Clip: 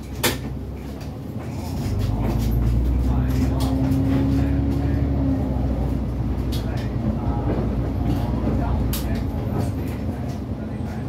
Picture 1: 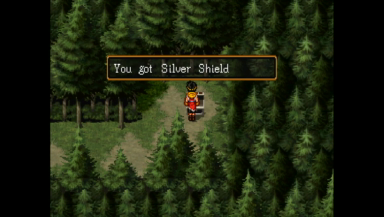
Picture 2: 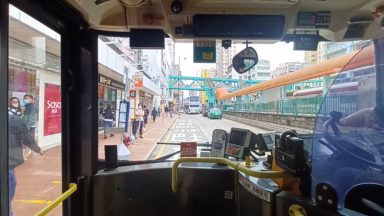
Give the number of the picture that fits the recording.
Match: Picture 2